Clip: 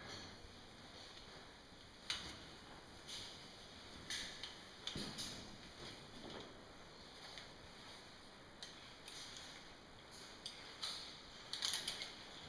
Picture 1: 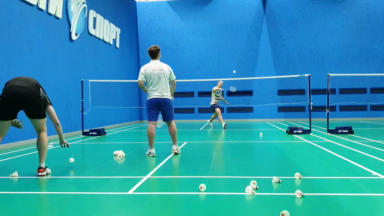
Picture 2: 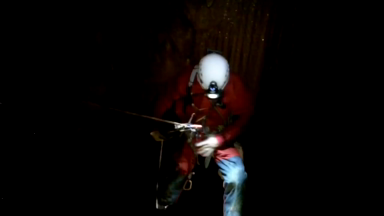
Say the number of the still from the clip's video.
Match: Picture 2